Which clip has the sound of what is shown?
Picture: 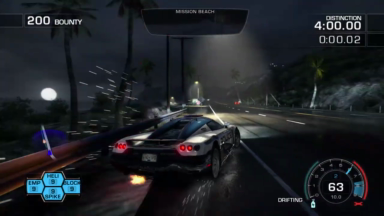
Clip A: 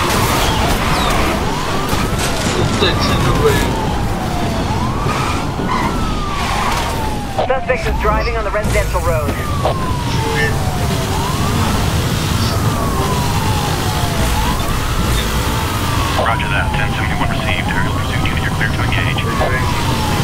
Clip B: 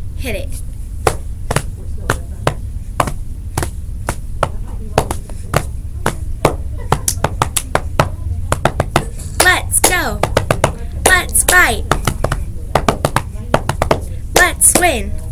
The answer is A